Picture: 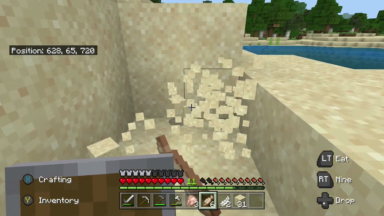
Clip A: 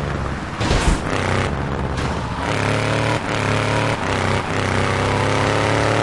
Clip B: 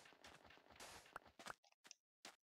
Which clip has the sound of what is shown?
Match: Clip B